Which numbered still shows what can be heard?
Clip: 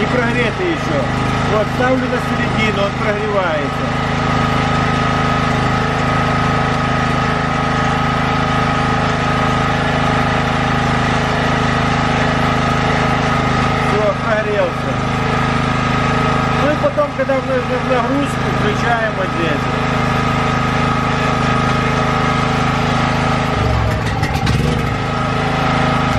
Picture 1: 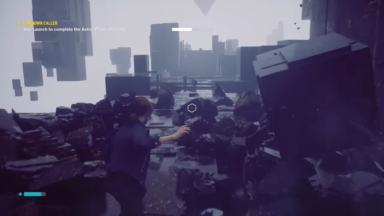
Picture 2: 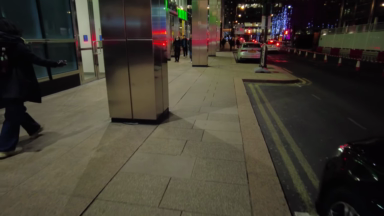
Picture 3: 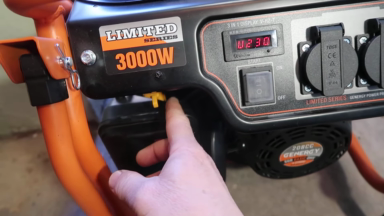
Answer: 3